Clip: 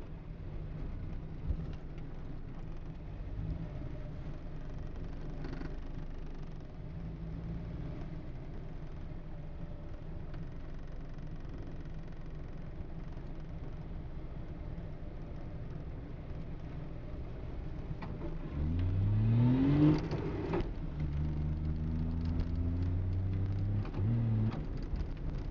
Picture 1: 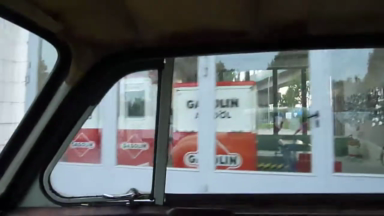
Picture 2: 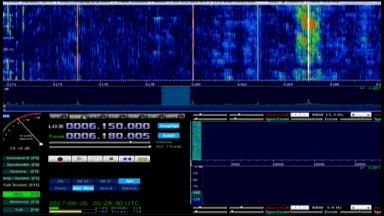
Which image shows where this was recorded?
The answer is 1